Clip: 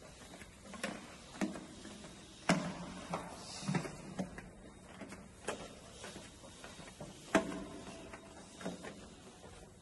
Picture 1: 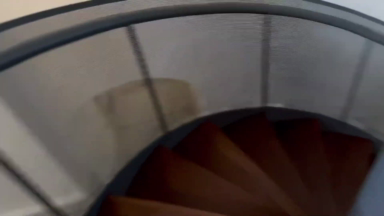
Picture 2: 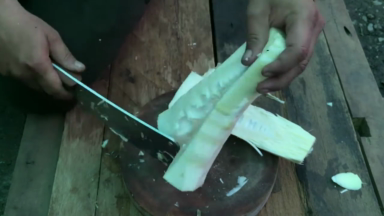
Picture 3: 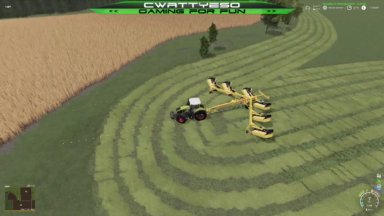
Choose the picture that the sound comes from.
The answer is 1